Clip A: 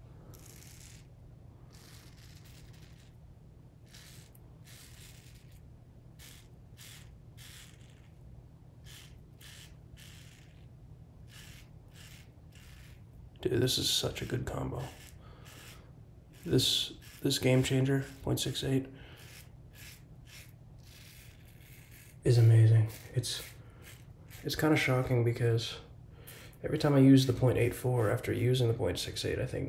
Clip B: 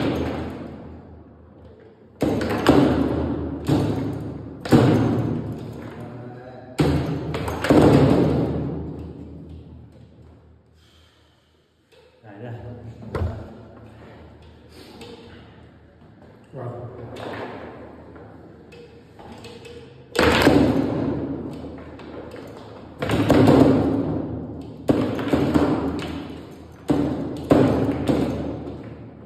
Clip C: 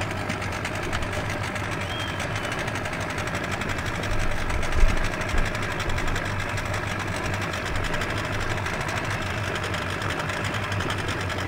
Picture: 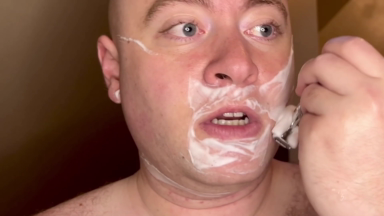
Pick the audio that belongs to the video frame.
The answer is A